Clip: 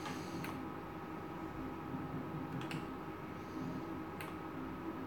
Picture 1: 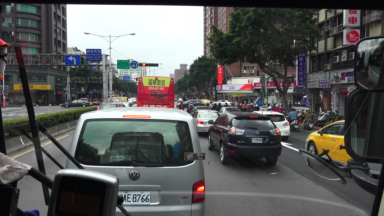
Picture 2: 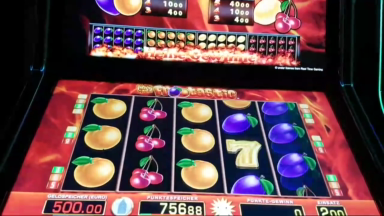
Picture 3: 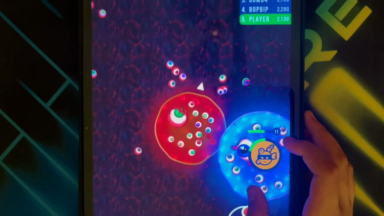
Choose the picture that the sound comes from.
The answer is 2